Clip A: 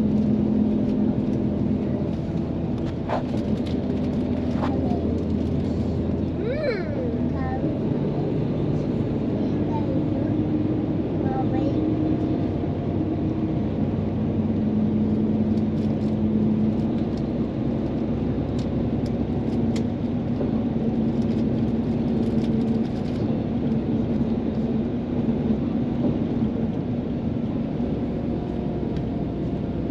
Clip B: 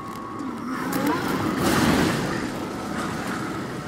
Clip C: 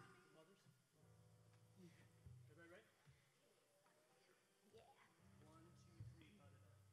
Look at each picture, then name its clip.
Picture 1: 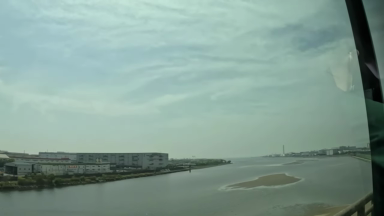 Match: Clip A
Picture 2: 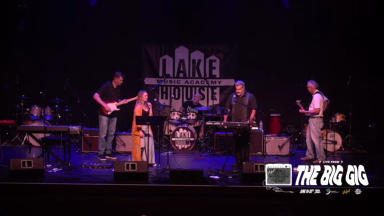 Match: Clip C